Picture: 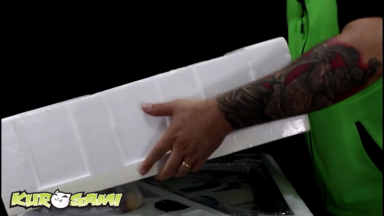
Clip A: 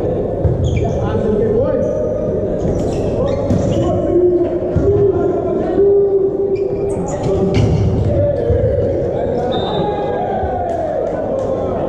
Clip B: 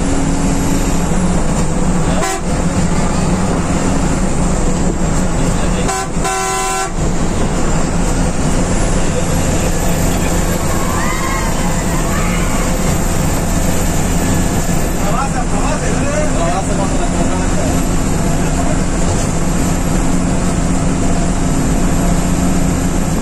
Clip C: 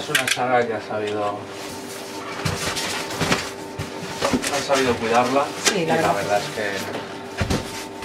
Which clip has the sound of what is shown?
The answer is C